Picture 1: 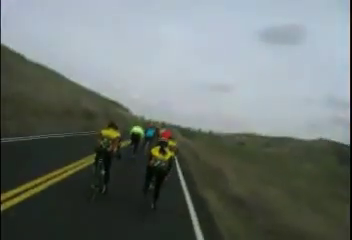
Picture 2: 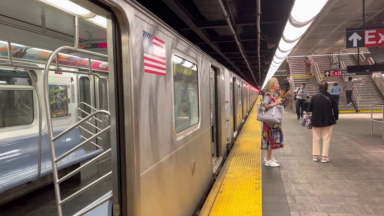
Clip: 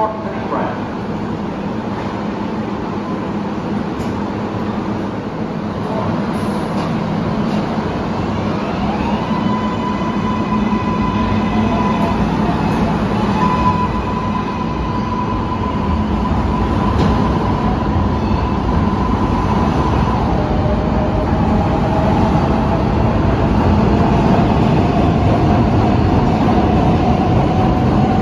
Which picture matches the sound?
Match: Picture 2